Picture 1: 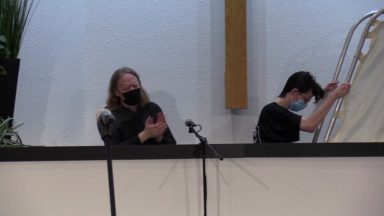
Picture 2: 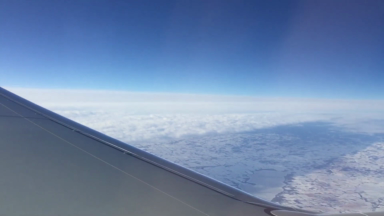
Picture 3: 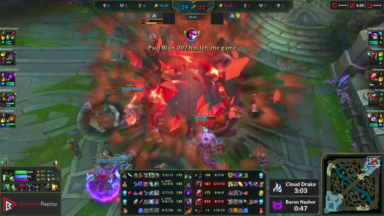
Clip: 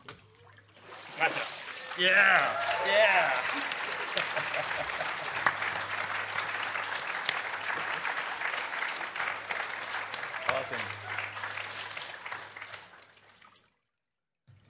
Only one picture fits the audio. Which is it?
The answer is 1